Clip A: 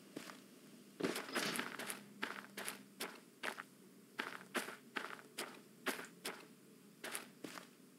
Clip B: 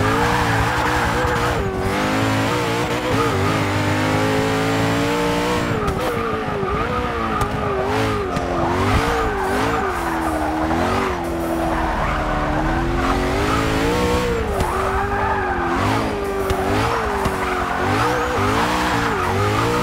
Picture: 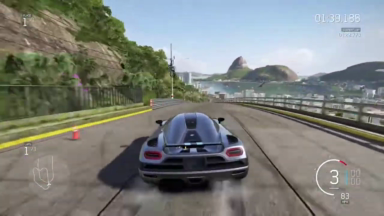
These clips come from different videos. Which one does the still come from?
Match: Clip B